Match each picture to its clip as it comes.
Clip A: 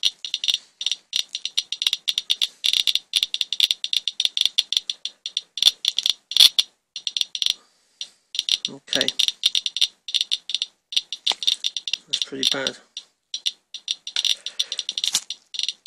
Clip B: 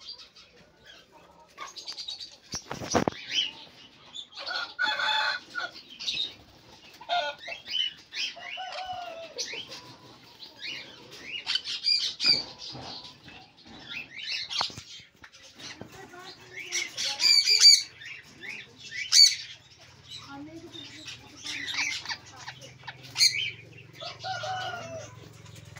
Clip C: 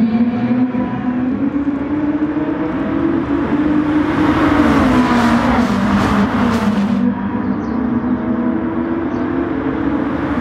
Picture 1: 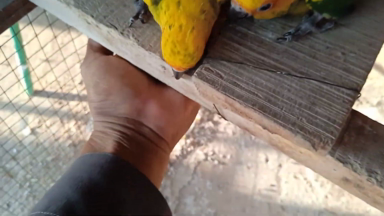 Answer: B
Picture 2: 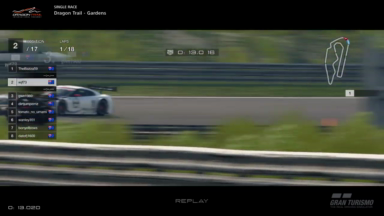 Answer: C